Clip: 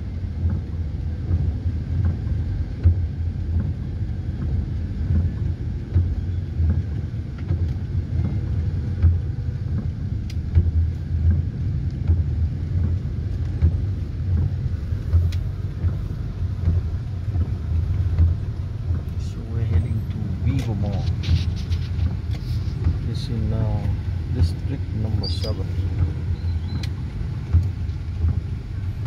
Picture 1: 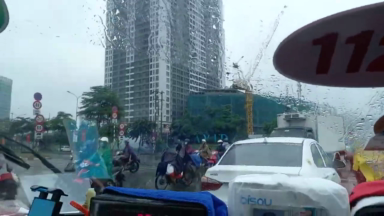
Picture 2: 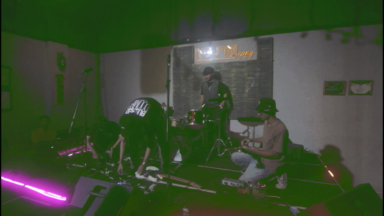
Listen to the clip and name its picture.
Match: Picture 1